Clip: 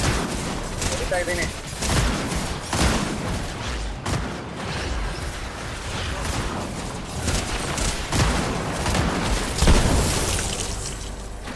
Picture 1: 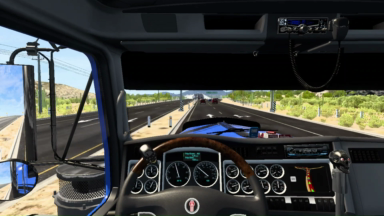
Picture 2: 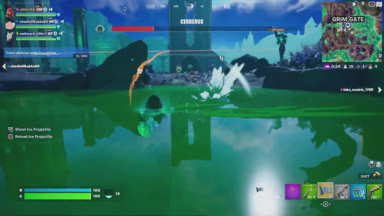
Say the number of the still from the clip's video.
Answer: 2